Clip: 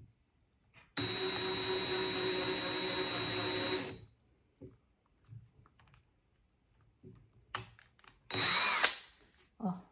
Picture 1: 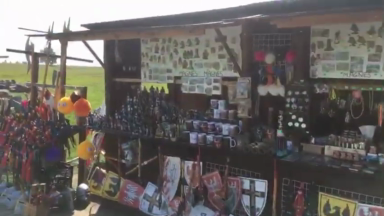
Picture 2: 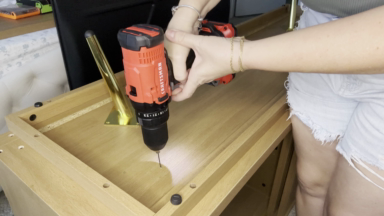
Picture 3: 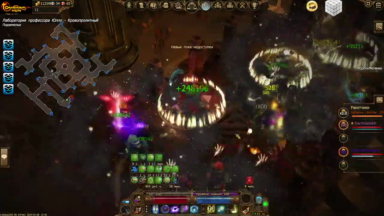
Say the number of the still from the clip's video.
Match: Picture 2